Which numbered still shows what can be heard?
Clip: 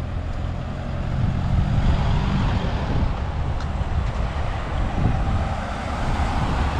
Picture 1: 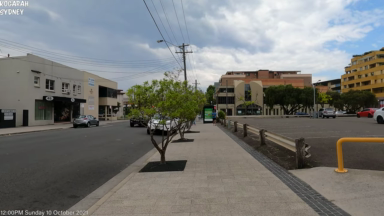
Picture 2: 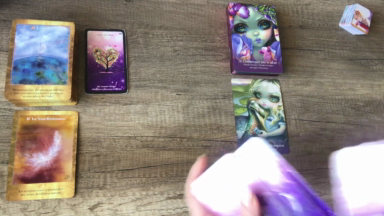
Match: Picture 1